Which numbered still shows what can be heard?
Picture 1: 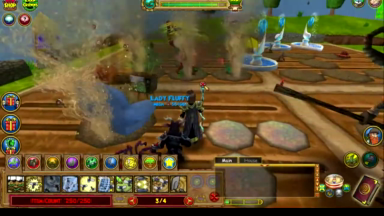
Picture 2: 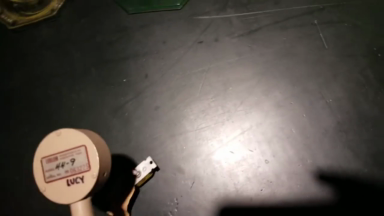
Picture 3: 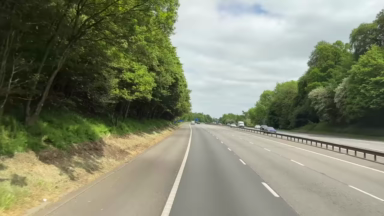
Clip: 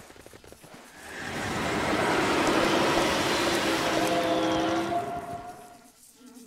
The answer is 1